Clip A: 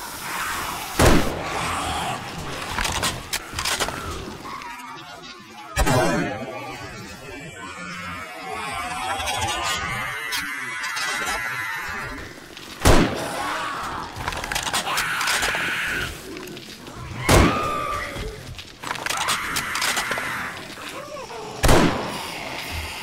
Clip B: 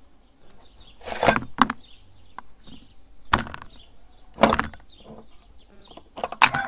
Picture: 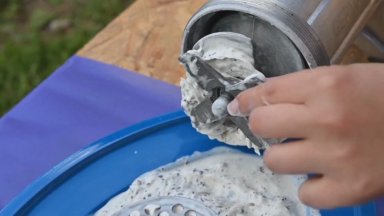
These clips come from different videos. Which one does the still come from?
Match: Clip B